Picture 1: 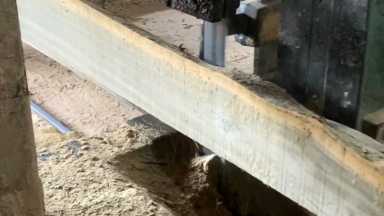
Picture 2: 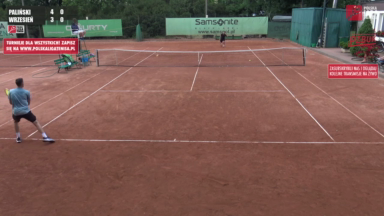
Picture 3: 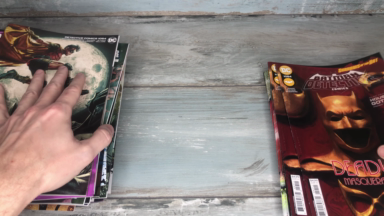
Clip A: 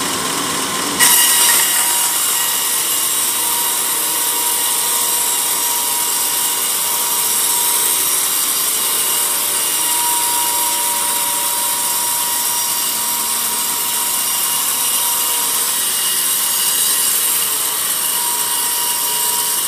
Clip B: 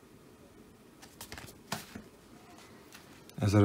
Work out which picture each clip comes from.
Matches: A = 1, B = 3